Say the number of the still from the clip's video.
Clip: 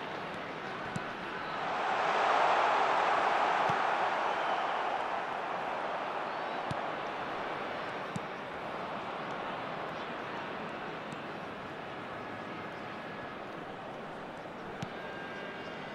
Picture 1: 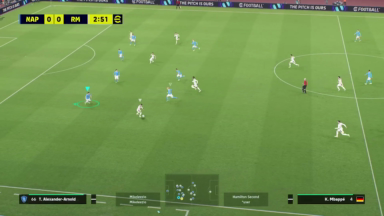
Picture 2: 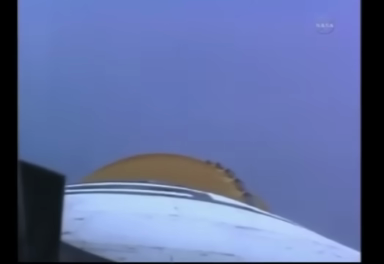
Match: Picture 1